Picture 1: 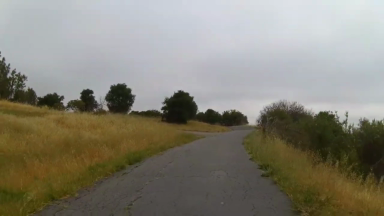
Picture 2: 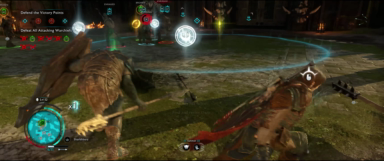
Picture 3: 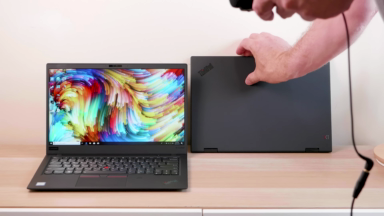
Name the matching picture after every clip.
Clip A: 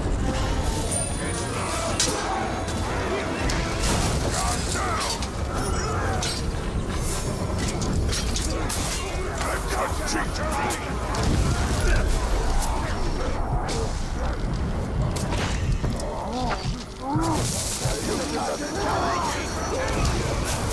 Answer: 2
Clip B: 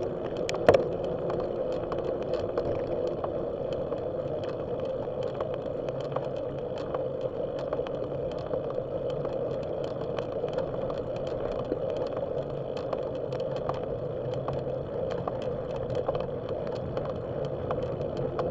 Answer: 1